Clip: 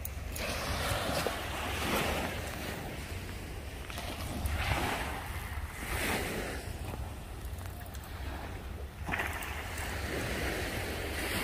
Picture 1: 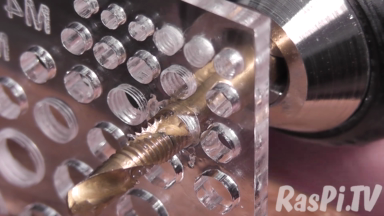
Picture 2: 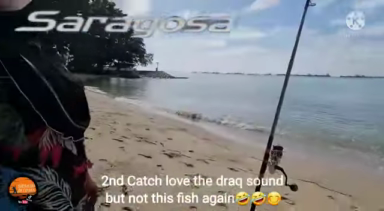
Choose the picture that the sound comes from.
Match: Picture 2